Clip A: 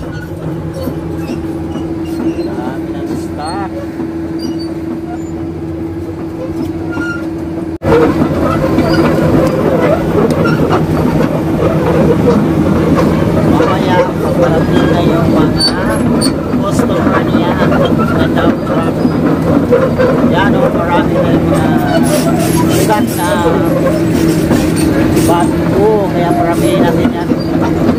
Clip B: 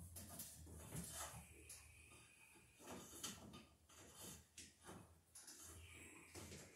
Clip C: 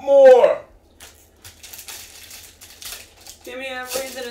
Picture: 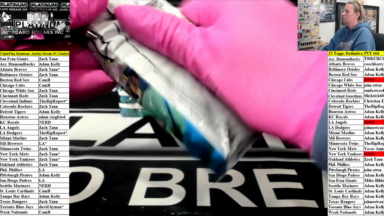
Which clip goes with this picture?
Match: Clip C